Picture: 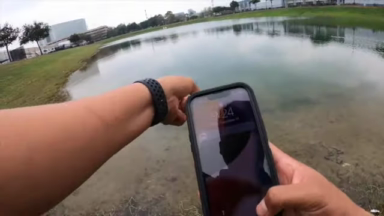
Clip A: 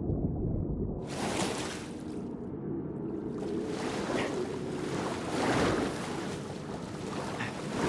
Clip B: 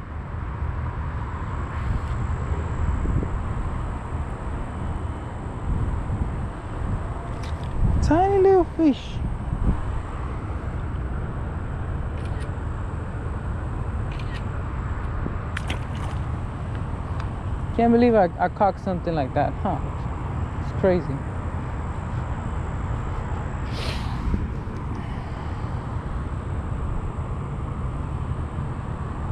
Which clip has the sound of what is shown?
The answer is B